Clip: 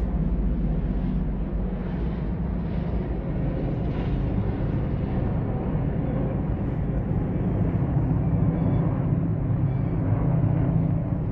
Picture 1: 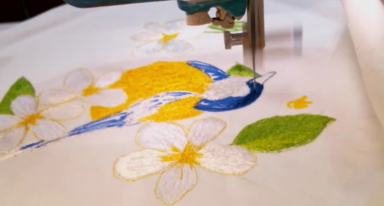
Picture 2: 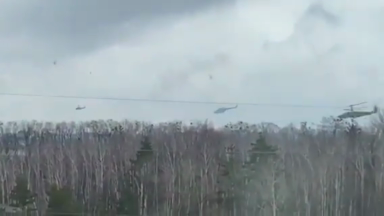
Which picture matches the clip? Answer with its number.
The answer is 2